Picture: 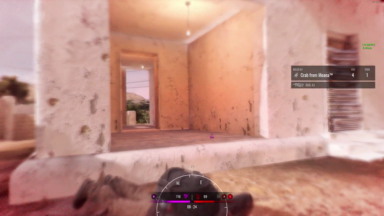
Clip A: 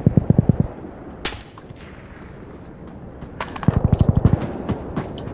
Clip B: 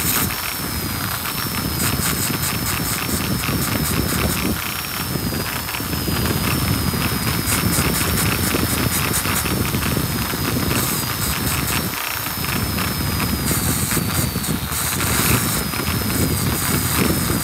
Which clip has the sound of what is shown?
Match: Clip A